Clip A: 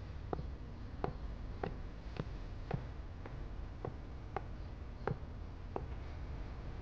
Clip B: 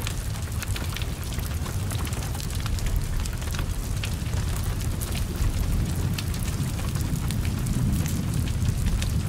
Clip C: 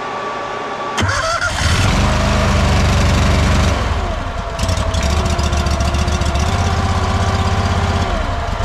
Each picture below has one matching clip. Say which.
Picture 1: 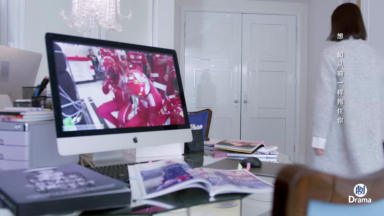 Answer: A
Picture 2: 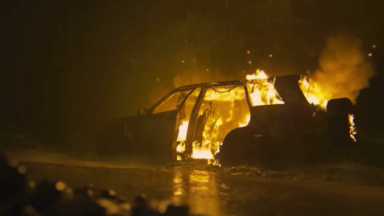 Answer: B